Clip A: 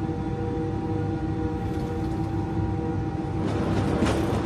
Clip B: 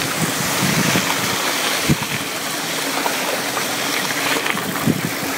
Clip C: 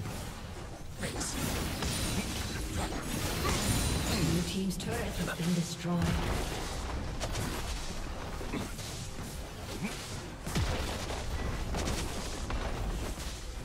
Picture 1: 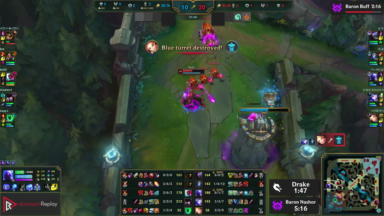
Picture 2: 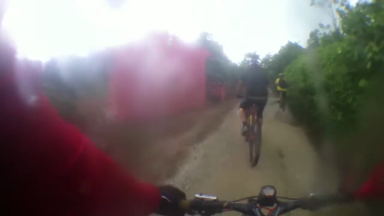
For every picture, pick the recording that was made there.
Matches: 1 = C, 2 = B